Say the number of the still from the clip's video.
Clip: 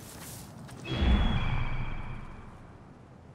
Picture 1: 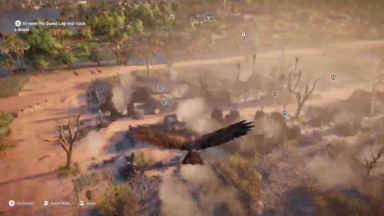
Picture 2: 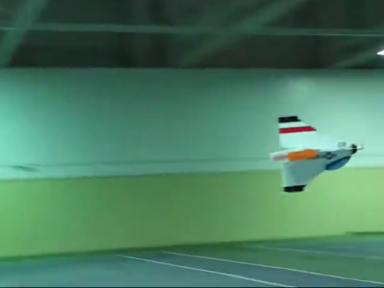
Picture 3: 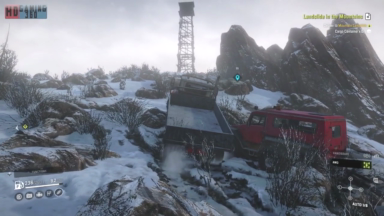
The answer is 1